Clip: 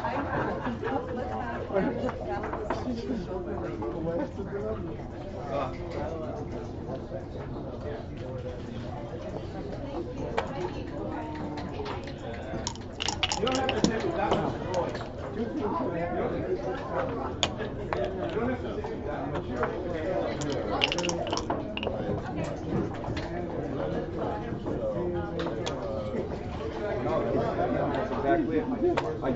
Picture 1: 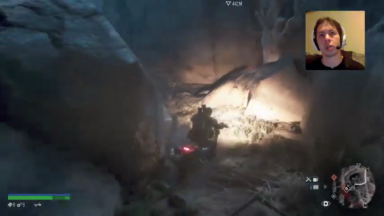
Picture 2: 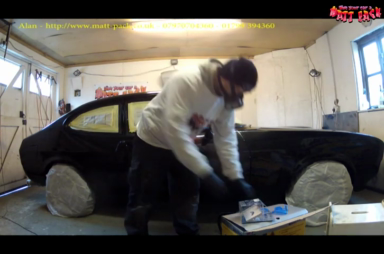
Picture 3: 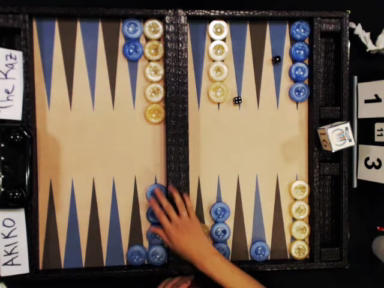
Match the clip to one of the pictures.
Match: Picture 3